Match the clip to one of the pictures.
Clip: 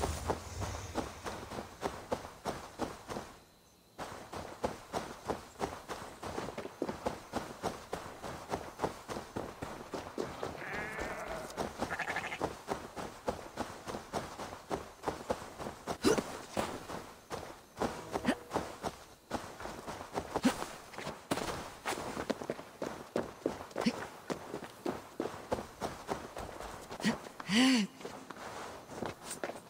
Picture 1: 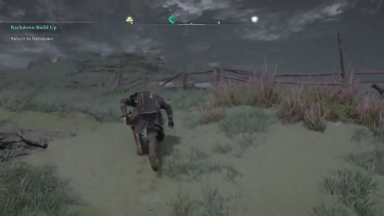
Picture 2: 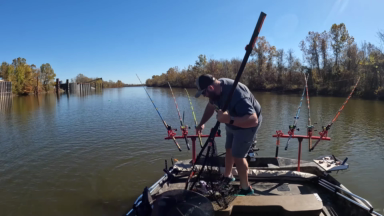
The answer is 1